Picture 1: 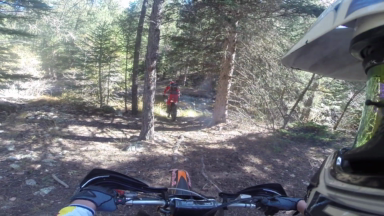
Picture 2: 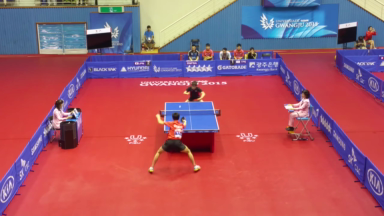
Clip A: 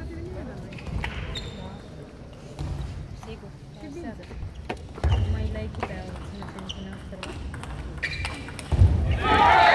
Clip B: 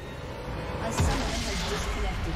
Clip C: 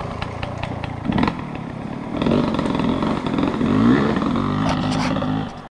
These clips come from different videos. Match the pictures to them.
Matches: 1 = C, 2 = A